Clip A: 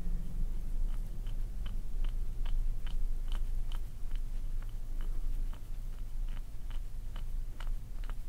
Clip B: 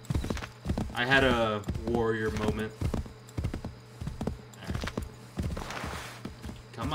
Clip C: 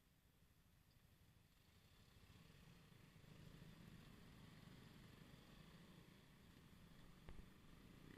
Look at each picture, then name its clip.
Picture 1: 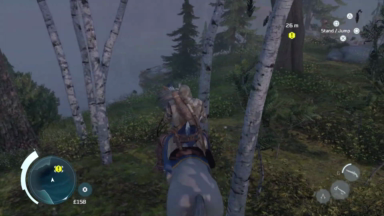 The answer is B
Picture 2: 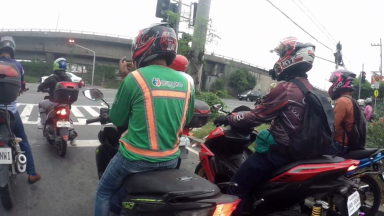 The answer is C